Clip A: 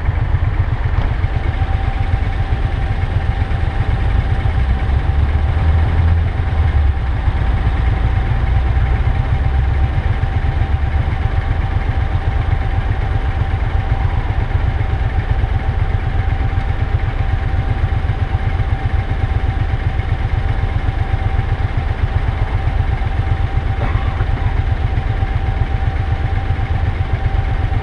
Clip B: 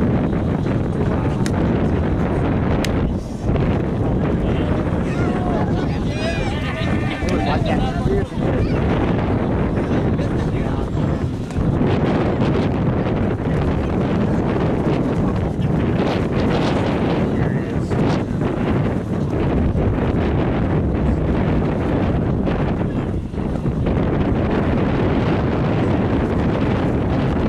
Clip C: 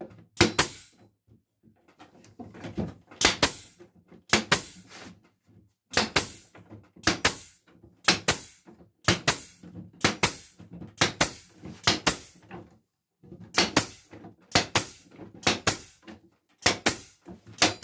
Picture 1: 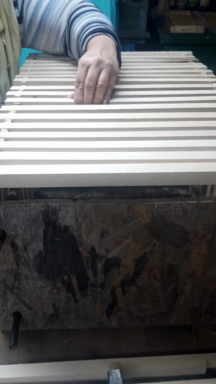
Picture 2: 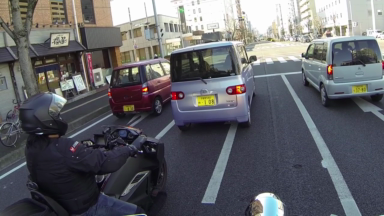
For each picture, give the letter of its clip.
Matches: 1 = C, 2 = A